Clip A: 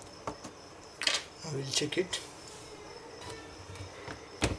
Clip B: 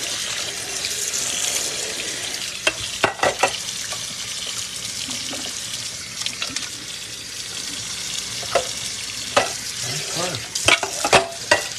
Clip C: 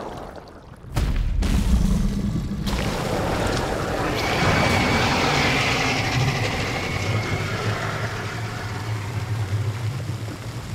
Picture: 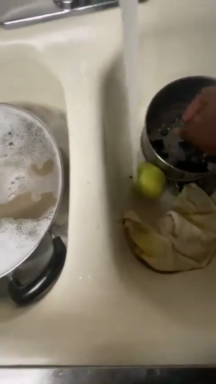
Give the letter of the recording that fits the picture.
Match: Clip B